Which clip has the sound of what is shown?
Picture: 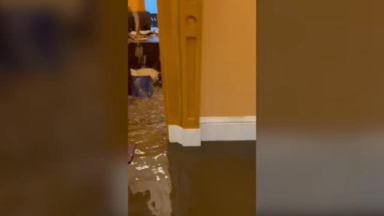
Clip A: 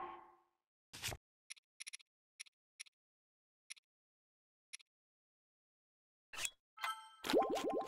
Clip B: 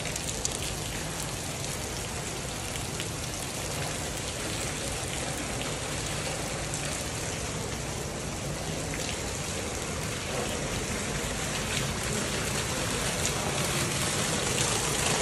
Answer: B